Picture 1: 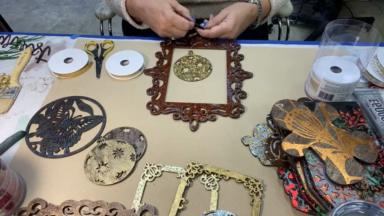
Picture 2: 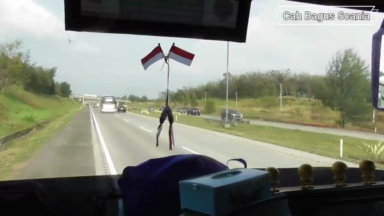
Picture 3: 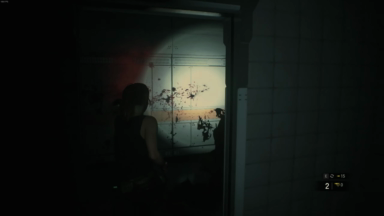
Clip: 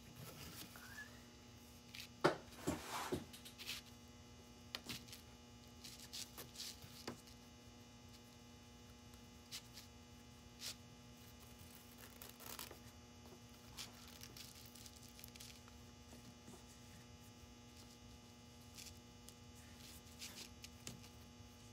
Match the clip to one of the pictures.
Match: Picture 1